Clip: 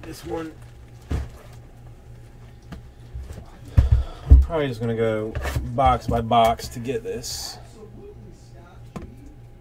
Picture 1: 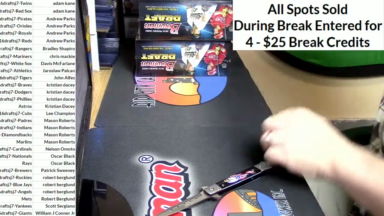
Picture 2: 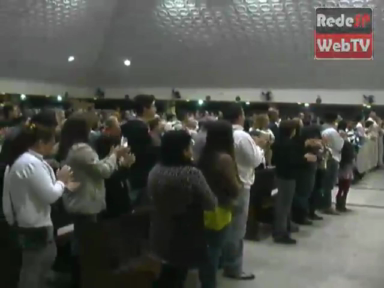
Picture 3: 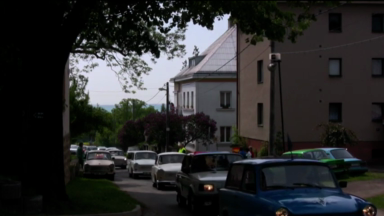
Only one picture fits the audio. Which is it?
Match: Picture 1